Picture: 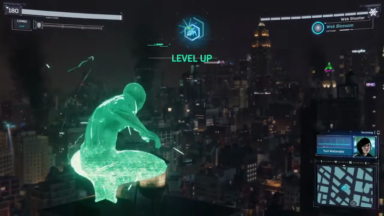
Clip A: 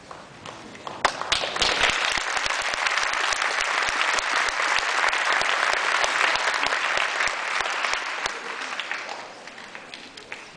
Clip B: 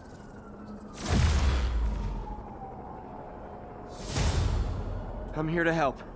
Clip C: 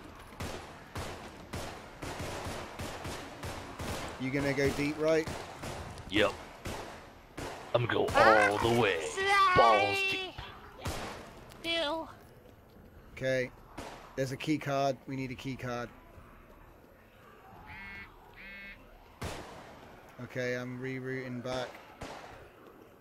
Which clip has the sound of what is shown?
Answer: B